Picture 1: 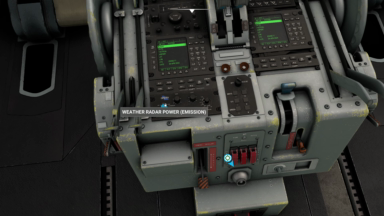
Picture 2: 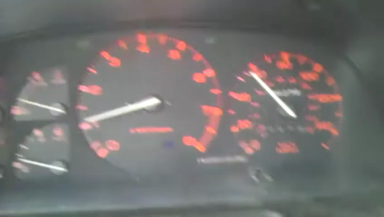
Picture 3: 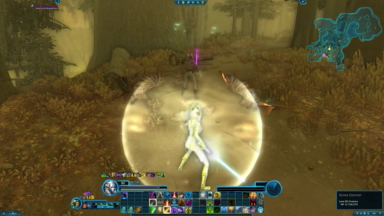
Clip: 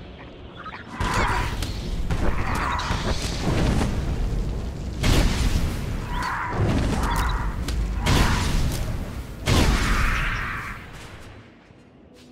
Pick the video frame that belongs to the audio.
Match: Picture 3